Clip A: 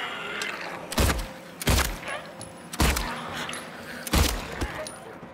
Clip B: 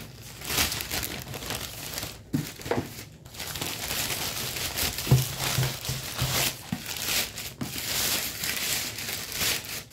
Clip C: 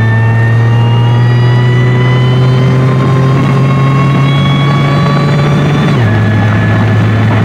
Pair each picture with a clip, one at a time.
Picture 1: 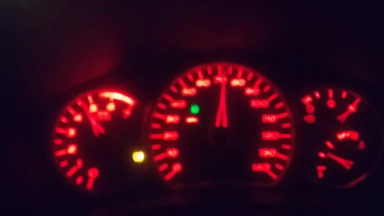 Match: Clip C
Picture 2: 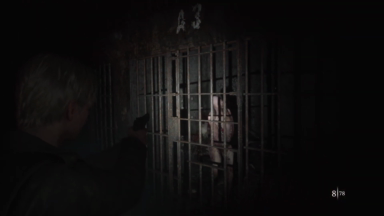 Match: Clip A